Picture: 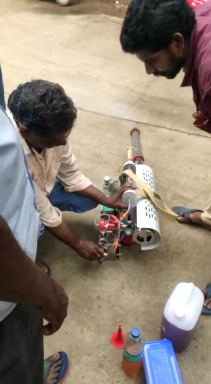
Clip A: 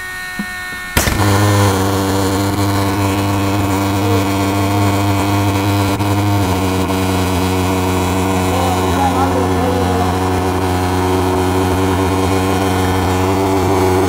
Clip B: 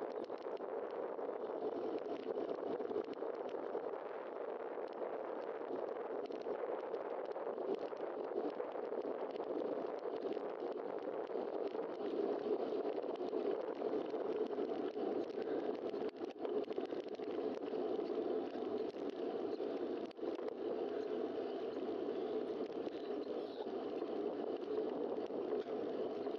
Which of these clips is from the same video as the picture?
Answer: A